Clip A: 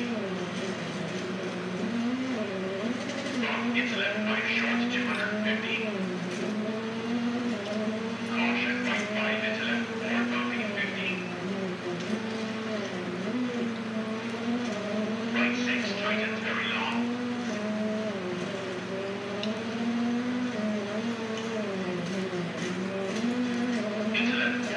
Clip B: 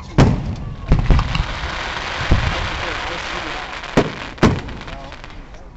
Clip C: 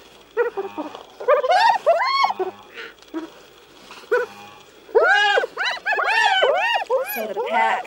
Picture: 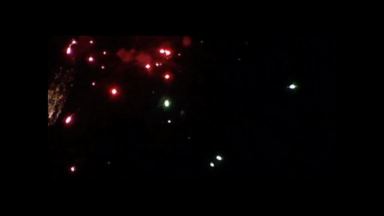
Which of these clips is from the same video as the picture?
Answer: B